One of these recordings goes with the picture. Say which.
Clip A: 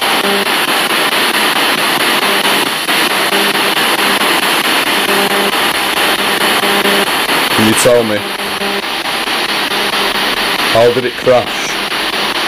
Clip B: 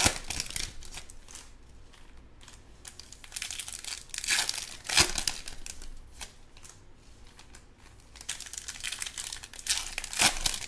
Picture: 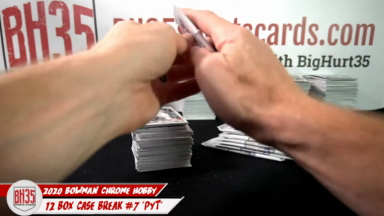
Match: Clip B